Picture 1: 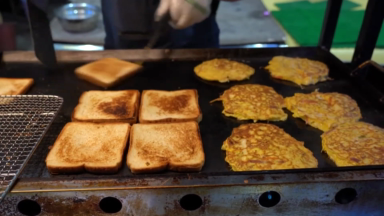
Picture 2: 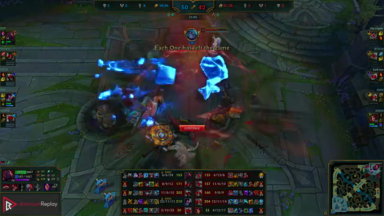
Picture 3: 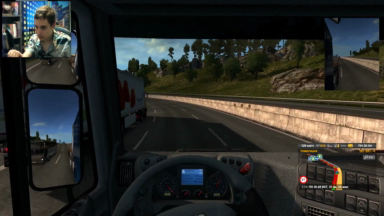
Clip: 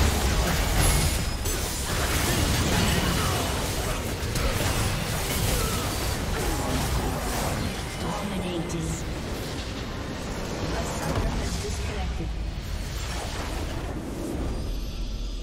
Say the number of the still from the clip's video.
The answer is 2